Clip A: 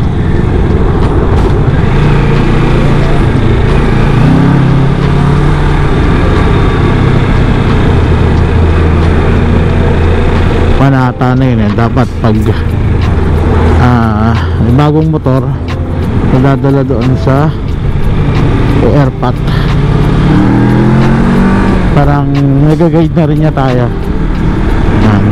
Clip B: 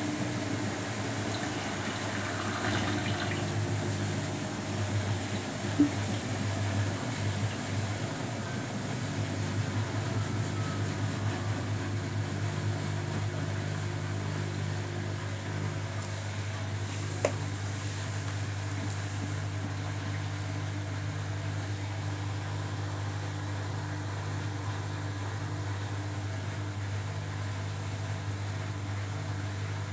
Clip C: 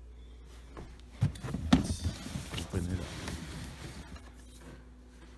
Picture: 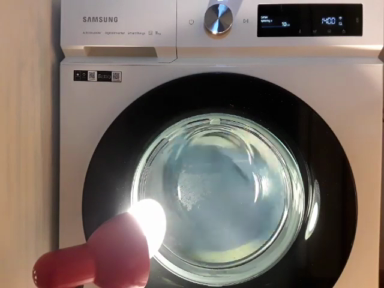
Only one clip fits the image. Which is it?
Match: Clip B